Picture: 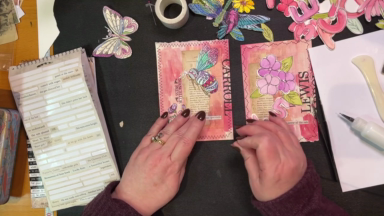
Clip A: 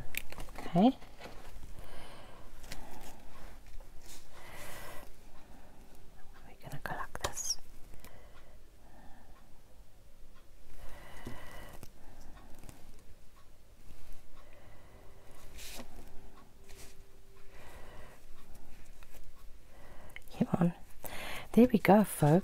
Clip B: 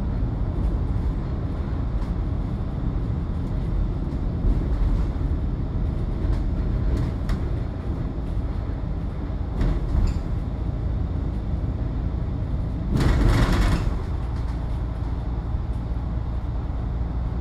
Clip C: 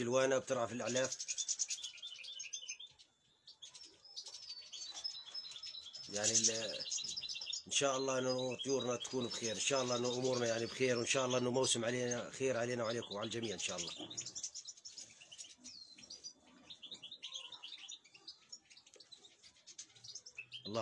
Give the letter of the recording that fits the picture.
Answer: A